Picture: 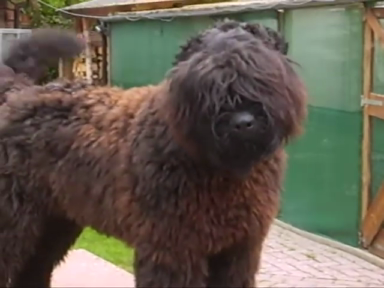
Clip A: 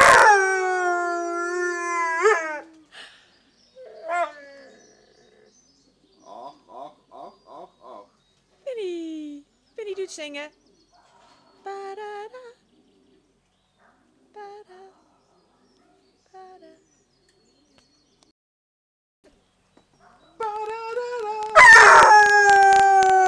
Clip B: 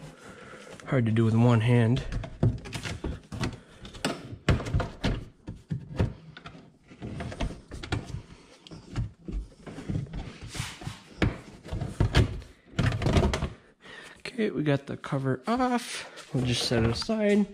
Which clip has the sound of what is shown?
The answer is A